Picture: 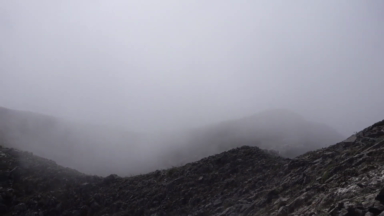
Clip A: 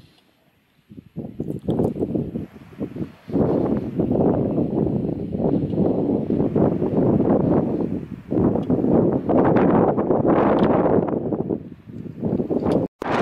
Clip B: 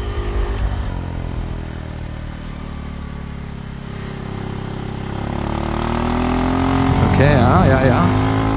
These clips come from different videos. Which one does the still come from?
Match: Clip A